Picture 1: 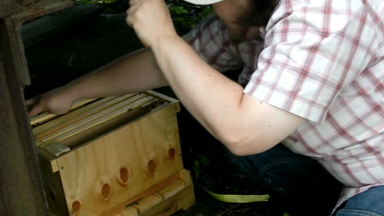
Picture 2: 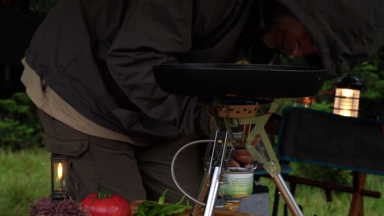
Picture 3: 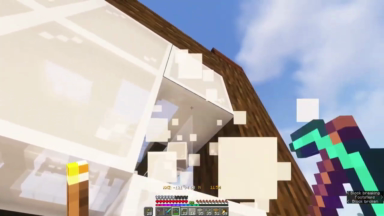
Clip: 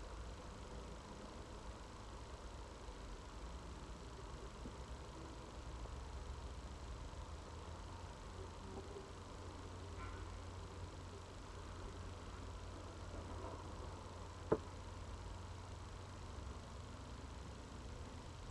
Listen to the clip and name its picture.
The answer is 1